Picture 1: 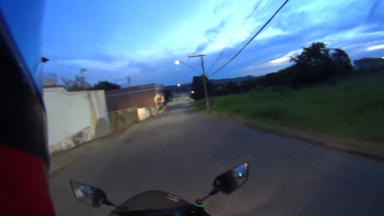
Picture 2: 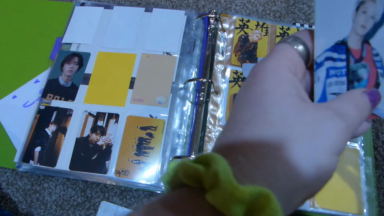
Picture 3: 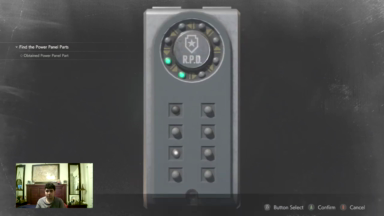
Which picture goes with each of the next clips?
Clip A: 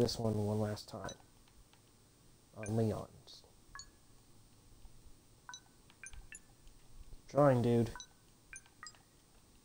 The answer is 3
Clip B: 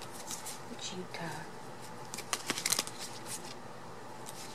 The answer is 2